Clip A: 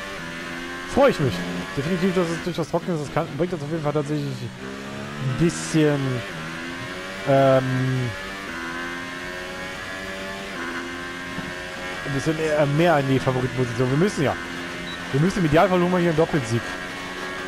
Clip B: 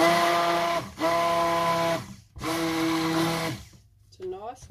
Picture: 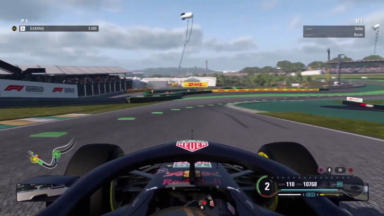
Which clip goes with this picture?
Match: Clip A